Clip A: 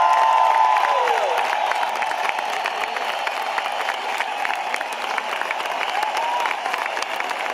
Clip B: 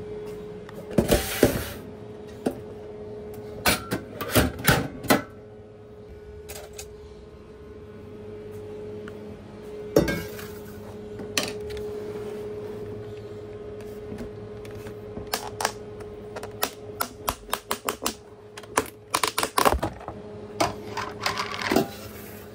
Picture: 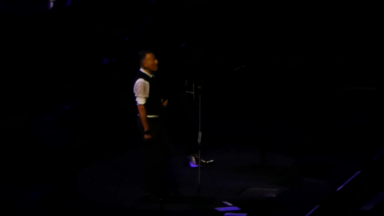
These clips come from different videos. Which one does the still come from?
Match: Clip A